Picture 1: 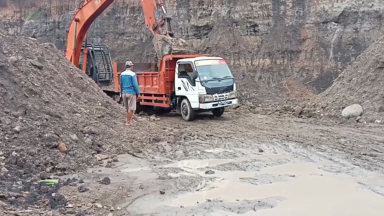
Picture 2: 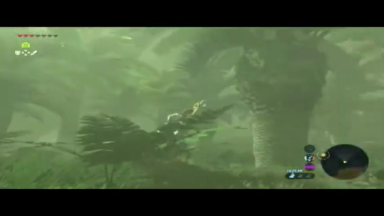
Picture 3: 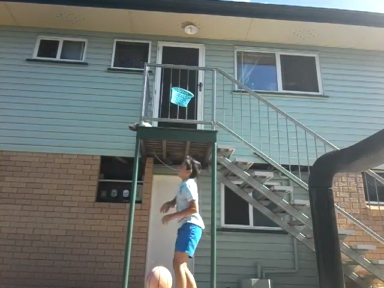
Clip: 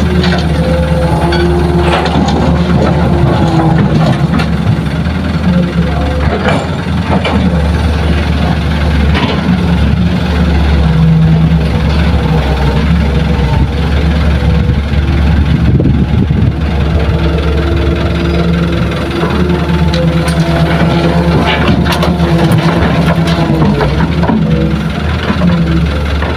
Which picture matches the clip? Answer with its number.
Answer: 1